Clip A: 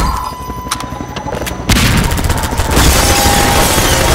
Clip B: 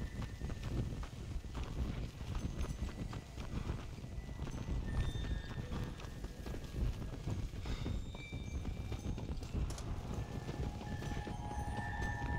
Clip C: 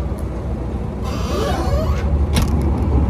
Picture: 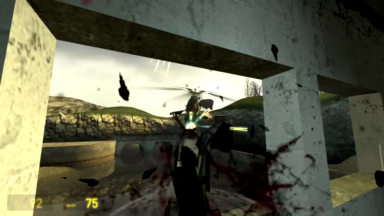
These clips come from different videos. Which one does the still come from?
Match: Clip A